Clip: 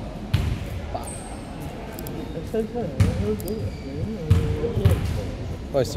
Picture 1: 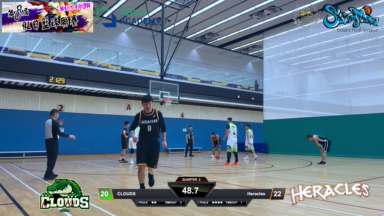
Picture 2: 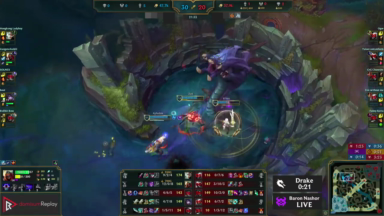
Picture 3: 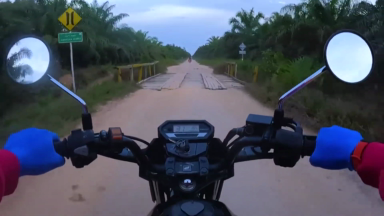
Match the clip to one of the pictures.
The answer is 1